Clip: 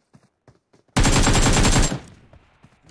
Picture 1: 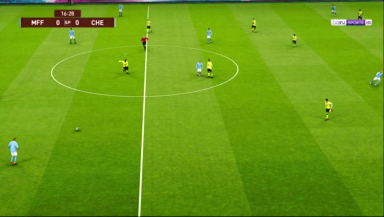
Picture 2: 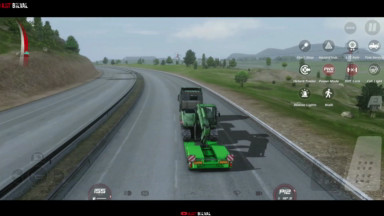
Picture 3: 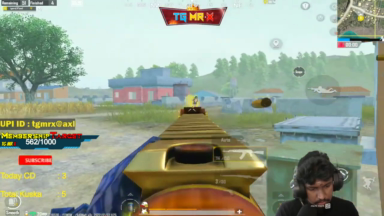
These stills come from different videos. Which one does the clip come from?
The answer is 3